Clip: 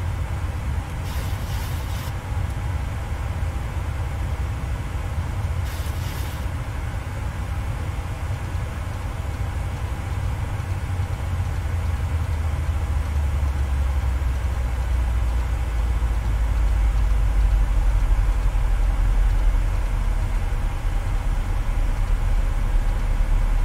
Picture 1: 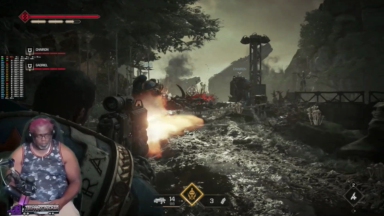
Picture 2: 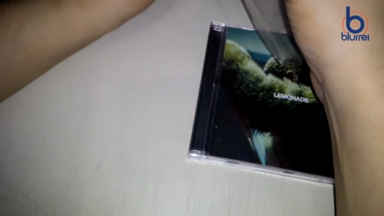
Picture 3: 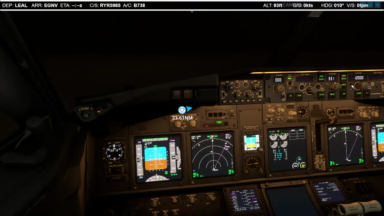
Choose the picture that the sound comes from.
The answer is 3